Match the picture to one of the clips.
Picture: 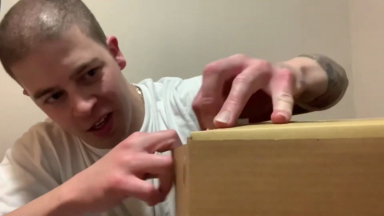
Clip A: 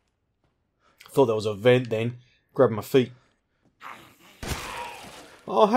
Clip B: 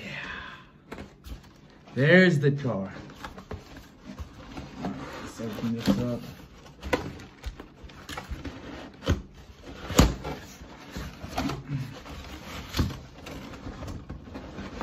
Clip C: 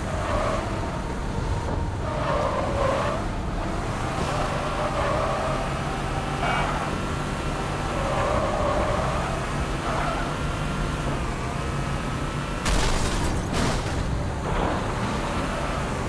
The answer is B